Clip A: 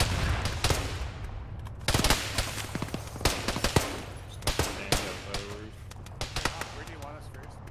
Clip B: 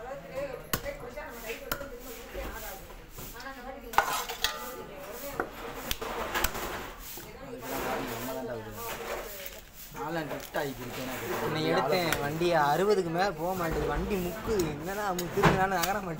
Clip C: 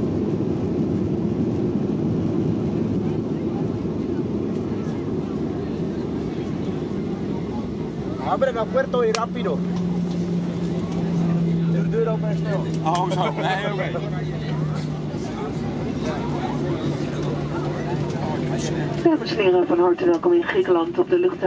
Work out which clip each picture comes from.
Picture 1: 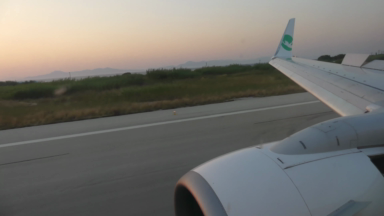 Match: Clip C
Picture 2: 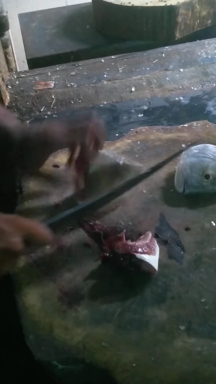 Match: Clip B